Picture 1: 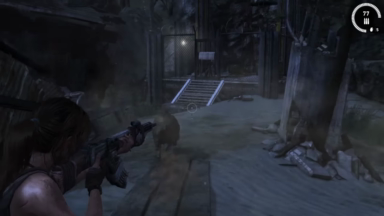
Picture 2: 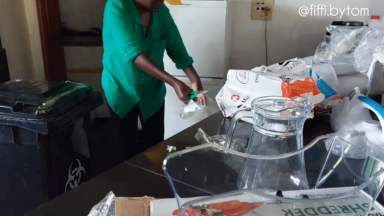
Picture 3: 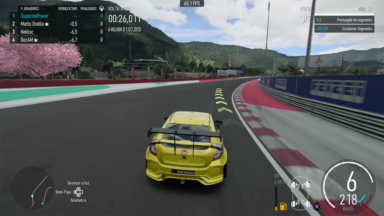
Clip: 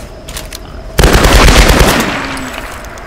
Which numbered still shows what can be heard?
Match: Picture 1